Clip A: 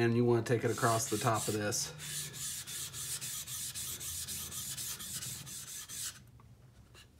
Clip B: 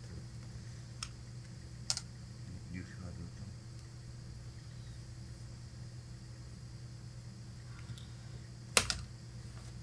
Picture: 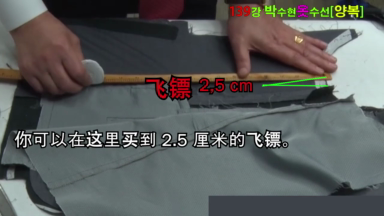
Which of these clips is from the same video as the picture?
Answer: B